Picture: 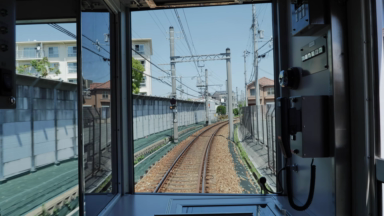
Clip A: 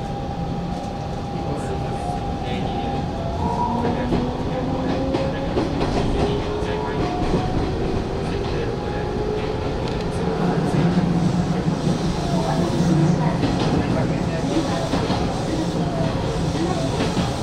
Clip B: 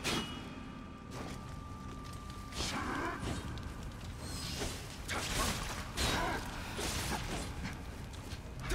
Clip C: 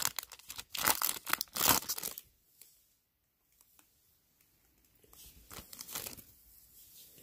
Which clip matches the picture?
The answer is A